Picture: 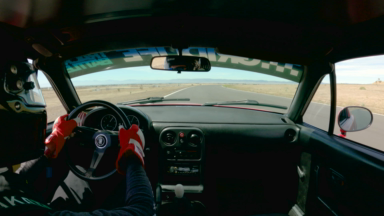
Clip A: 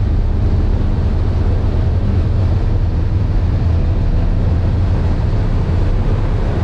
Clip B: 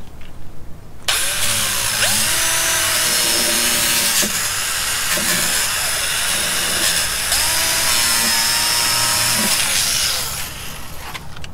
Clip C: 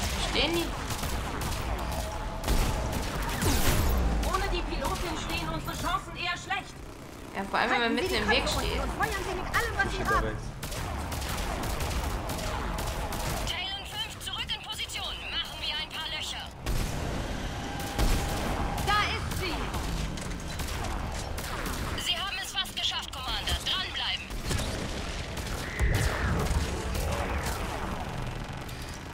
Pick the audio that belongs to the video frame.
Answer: A